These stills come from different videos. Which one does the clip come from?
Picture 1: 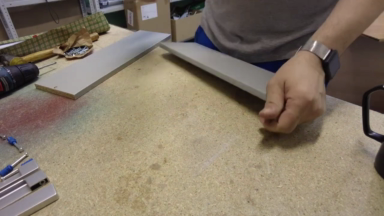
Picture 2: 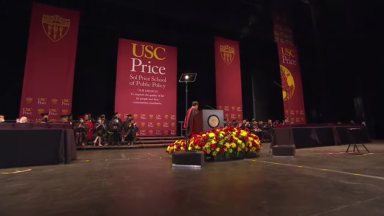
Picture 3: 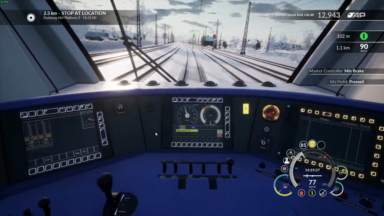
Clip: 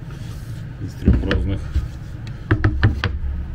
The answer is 1